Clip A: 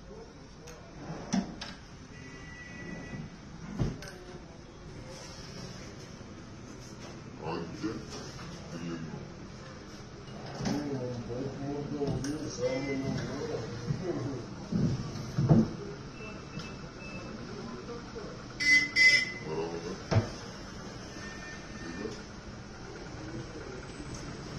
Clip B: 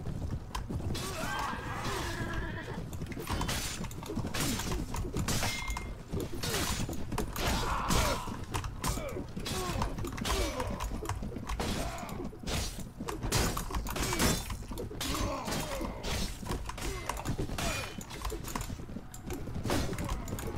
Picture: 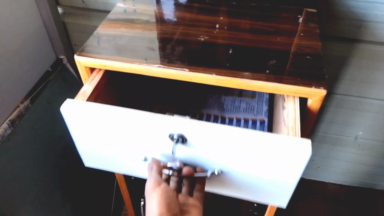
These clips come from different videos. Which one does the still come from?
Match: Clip A